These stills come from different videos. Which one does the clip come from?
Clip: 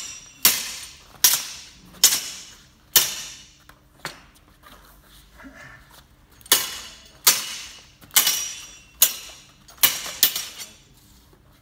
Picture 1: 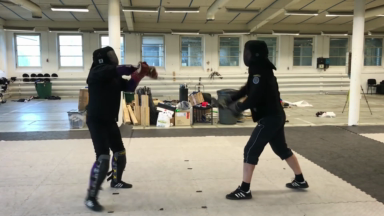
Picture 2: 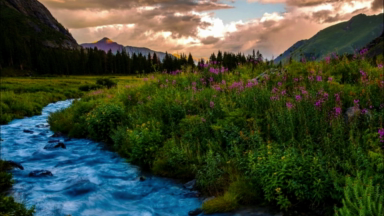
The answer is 1